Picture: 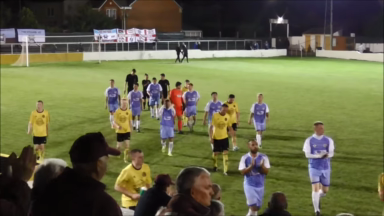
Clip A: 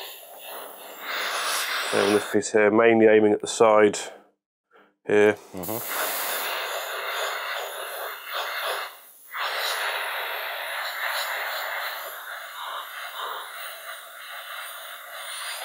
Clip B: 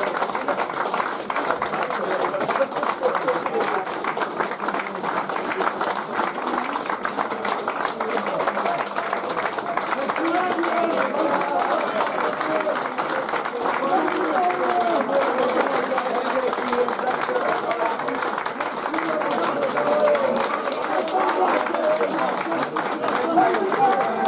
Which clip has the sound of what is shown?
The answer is B